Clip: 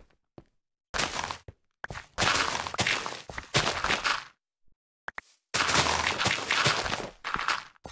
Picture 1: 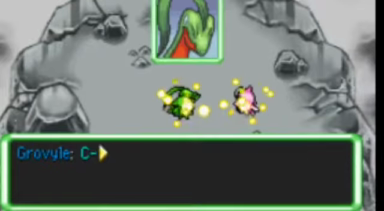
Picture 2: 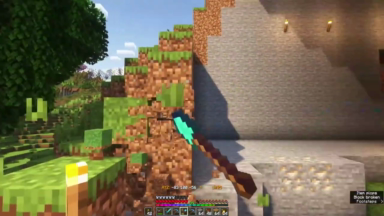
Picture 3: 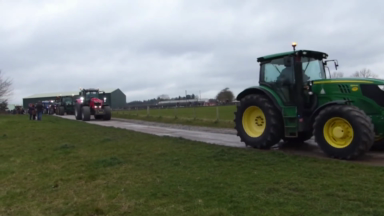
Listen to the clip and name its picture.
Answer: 2